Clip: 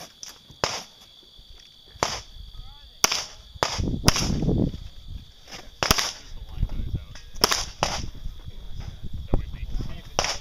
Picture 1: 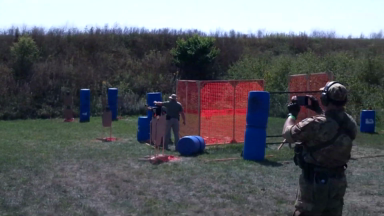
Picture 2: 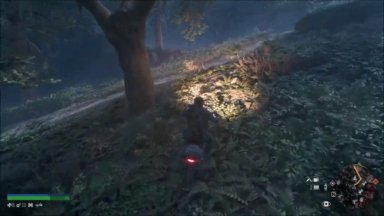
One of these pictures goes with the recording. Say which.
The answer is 1